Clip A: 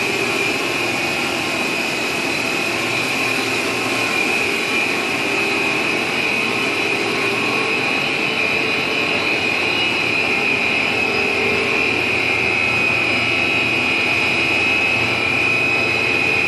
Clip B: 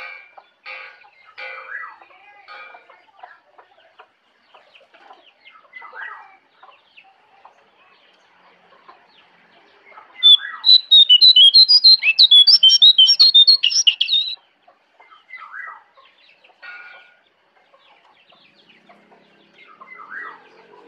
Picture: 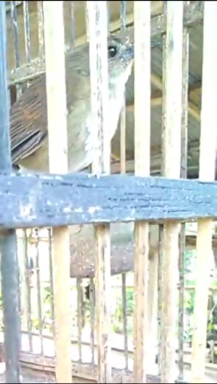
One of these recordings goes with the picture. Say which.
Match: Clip B